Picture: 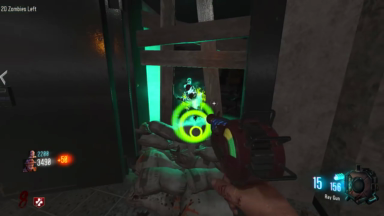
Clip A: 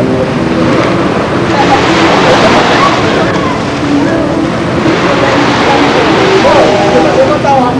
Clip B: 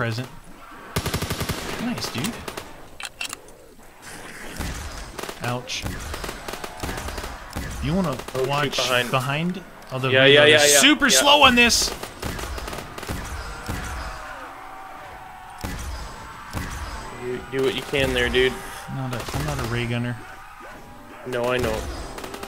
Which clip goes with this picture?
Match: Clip B